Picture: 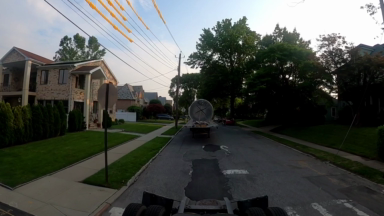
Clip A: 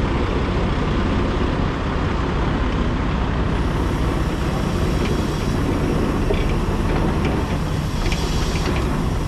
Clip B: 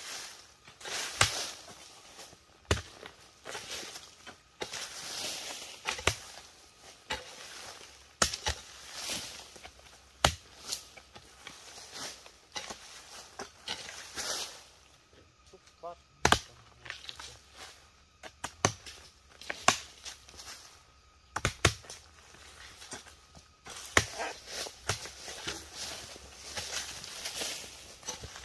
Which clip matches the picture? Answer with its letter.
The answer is A